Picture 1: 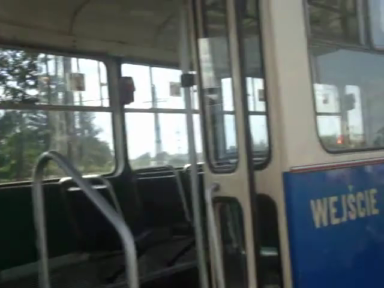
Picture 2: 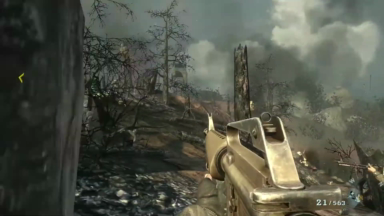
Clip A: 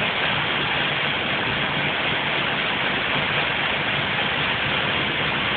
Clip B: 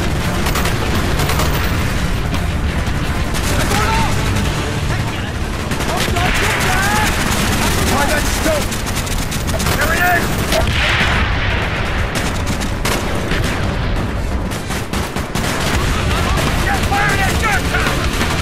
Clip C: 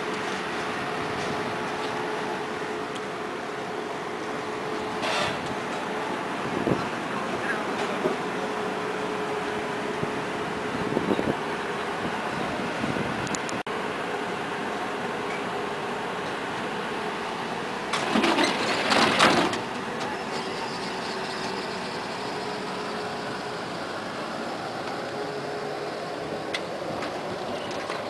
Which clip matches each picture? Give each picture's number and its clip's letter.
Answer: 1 C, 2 B